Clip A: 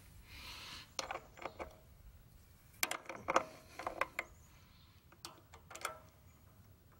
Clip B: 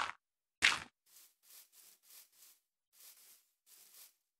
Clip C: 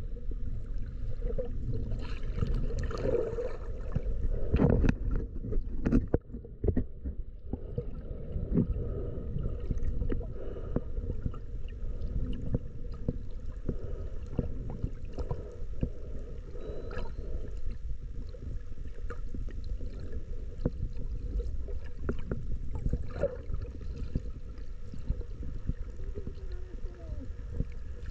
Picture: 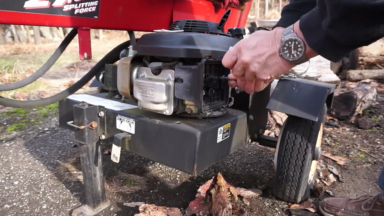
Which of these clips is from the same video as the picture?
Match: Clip A